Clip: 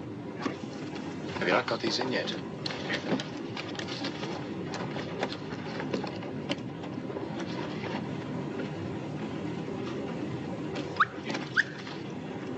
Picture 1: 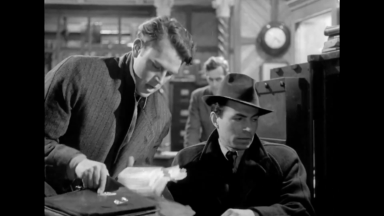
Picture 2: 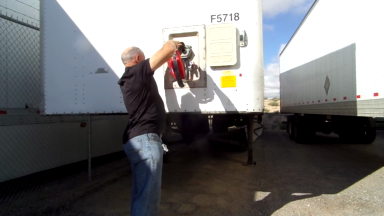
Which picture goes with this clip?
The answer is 1